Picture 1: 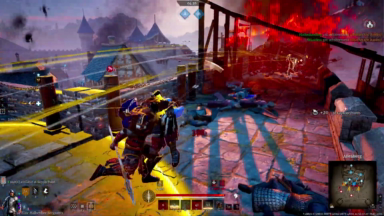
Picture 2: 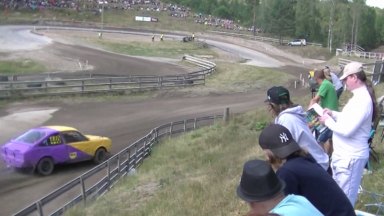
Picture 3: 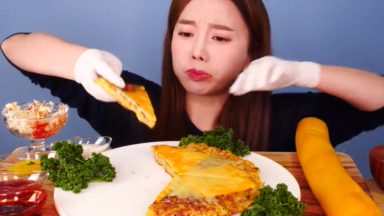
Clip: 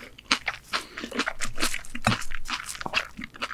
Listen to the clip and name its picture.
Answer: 3